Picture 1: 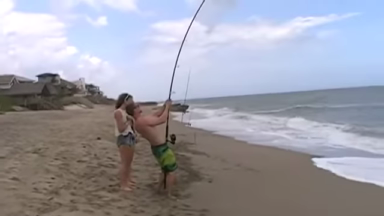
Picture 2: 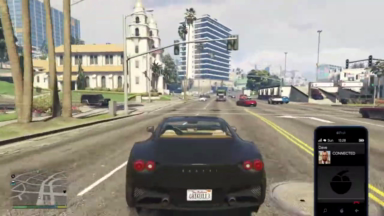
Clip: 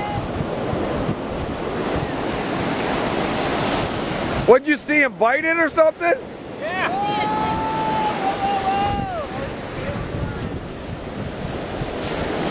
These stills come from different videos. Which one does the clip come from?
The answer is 1